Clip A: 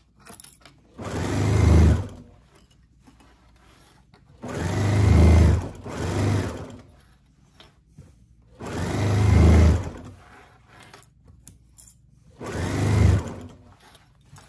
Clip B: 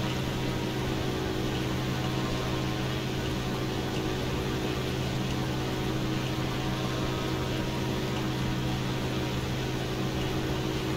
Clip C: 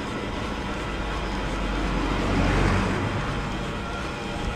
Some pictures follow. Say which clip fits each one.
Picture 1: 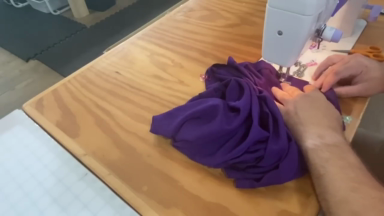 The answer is A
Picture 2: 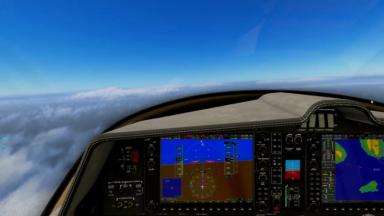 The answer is B